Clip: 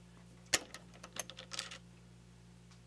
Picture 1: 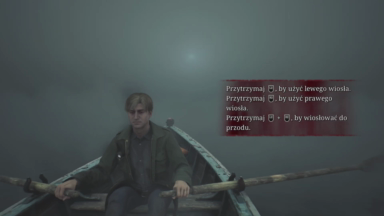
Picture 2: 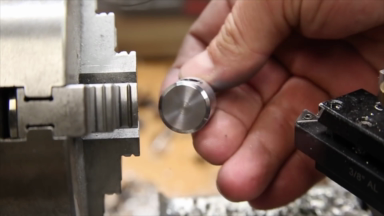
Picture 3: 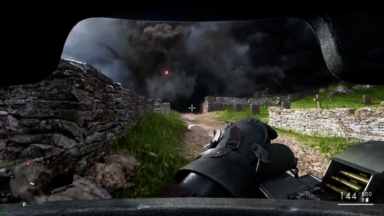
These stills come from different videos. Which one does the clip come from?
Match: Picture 2